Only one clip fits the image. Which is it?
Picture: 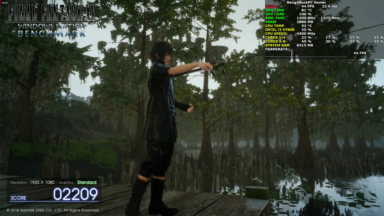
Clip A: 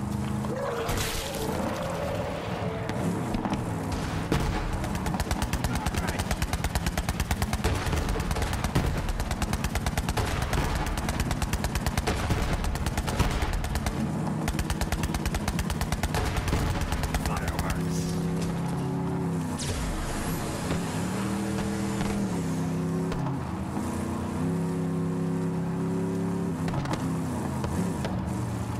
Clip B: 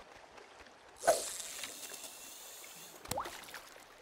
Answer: B